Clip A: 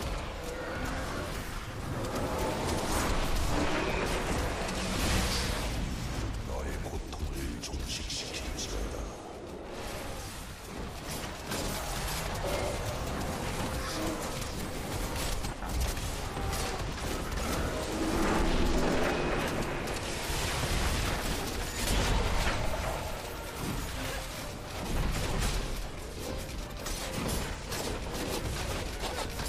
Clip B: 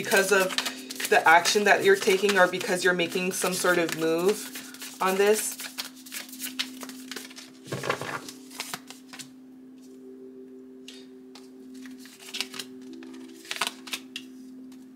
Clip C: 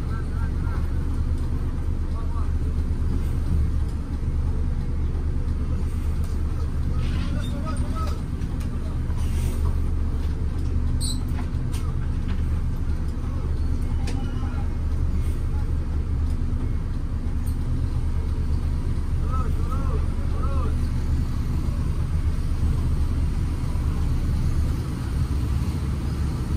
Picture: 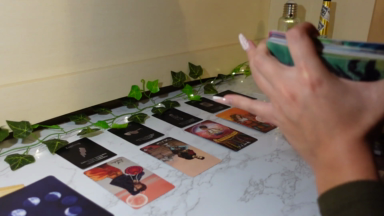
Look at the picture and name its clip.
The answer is B